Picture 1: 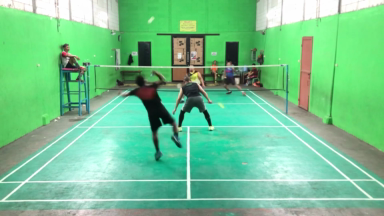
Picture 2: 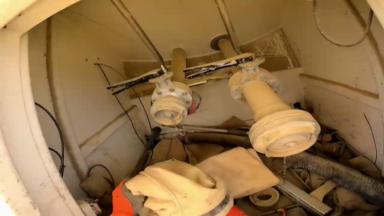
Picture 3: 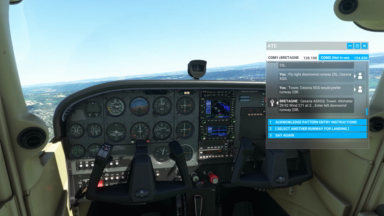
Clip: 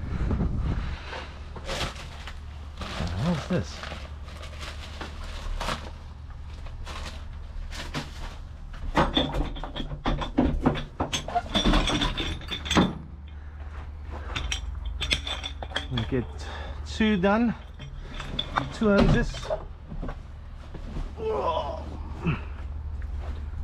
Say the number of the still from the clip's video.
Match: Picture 2